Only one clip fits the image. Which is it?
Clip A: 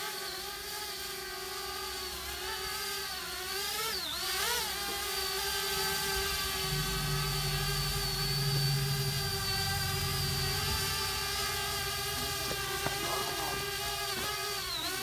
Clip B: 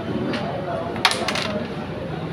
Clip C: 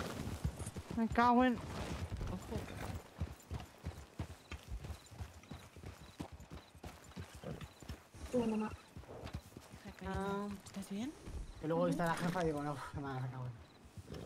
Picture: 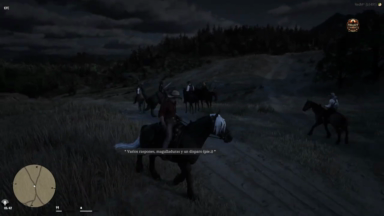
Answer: C